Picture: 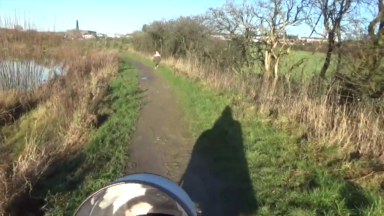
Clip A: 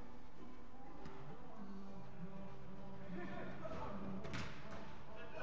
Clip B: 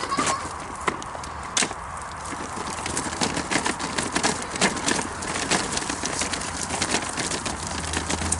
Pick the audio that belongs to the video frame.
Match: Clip B